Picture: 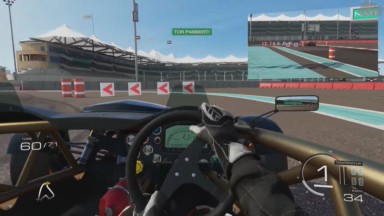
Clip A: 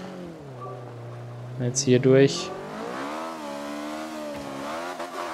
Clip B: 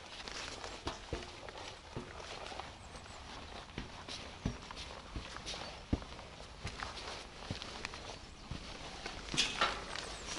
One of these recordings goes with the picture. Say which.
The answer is A